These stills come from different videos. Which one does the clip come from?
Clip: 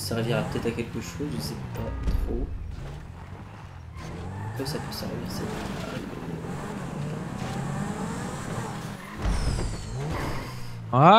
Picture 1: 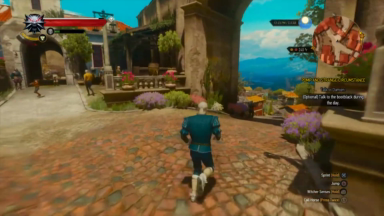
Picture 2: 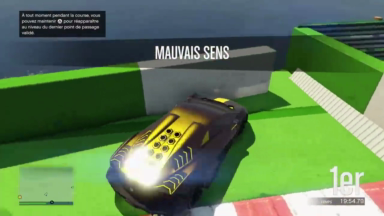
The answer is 2